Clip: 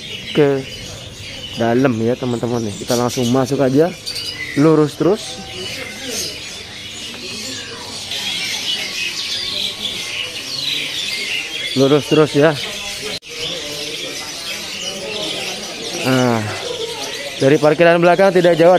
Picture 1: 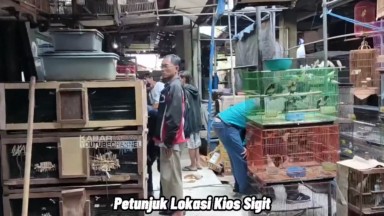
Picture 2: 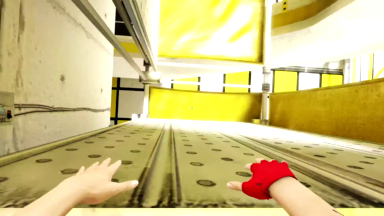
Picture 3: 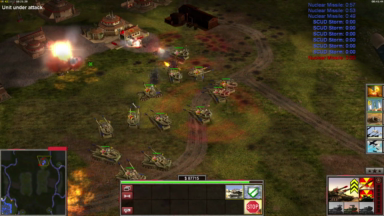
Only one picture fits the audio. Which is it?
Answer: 1